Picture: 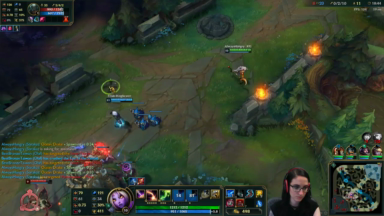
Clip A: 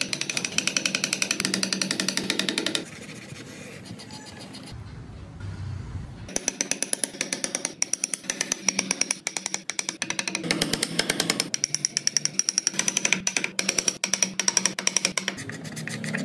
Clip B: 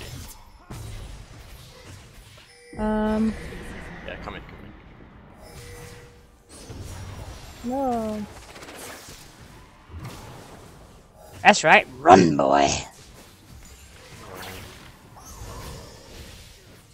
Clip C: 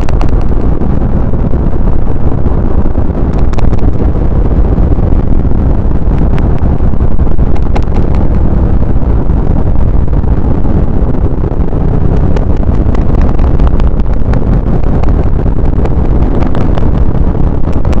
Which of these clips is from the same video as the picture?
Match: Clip B